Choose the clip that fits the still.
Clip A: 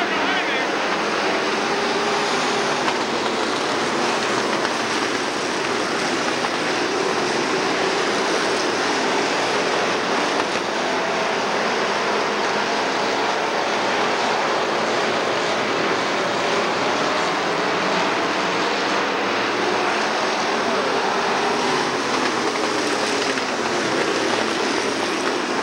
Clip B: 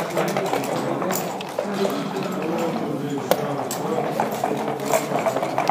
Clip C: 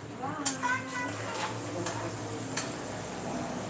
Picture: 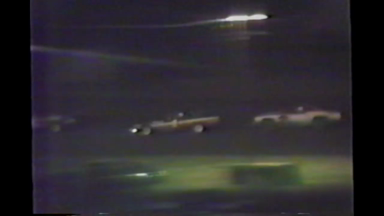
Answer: A